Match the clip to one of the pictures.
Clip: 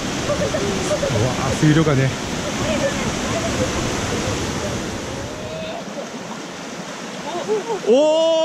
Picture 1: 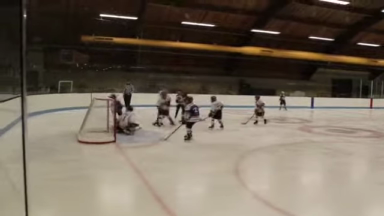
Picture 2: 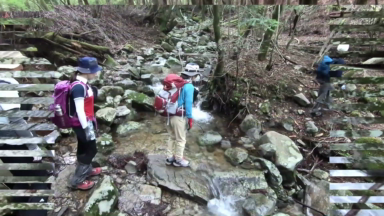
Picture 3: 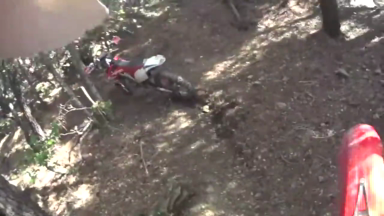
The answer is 2